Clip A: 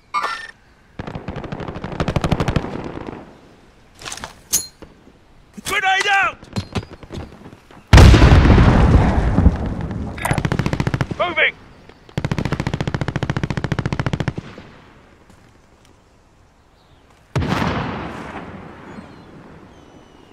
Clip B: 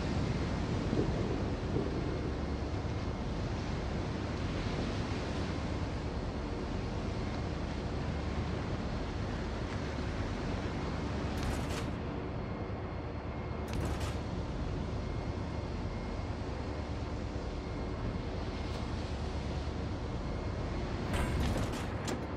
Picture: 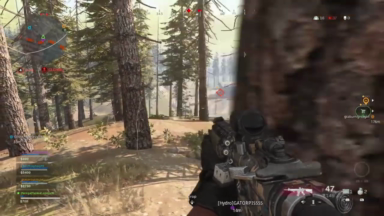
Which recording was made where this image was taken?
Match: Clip A